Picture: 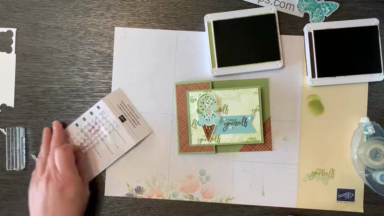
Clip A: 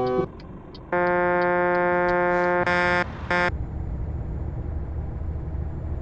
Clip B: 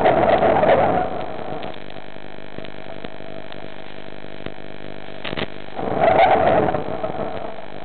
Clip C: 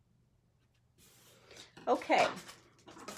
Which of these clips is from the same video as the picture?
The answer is C